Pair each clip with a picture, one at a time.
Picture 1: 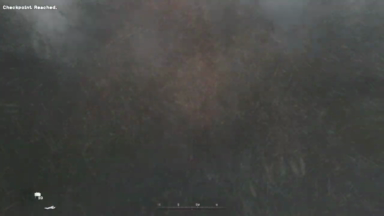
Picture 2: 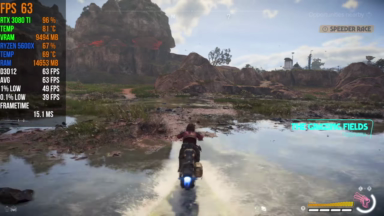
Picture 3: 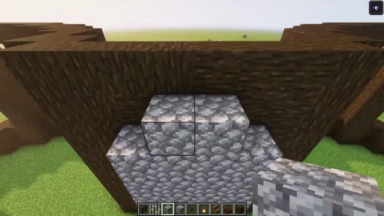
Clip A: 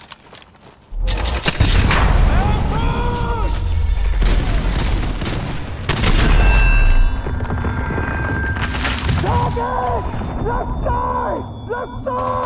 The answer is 1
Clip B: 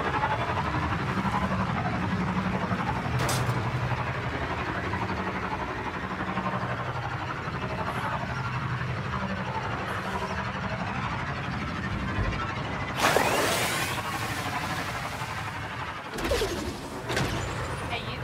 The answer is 2